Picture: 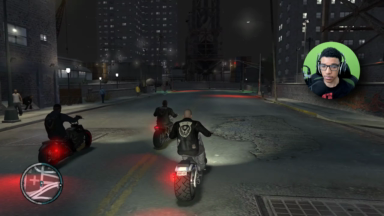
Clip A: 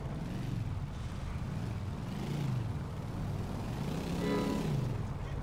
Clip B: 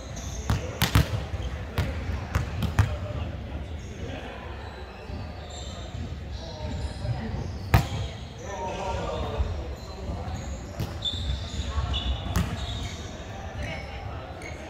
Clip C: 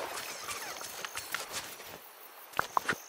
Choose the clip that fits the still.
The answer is A